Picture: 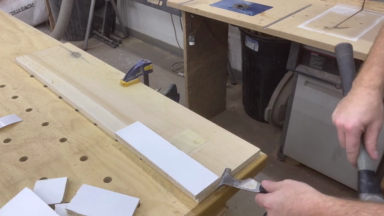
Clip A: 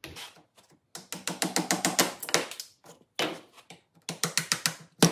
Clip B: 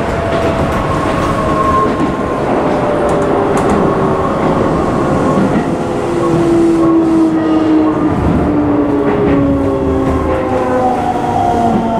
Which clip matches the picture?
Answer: A